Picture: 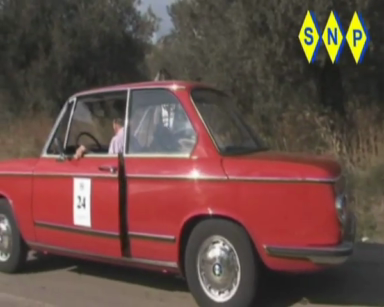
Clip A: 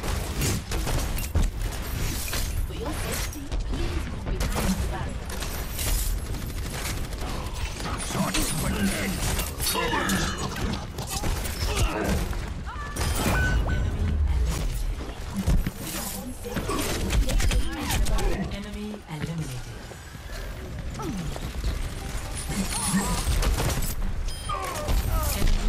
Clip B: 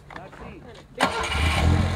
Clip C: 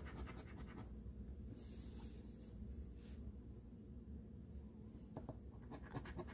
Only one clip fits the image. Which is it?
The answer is B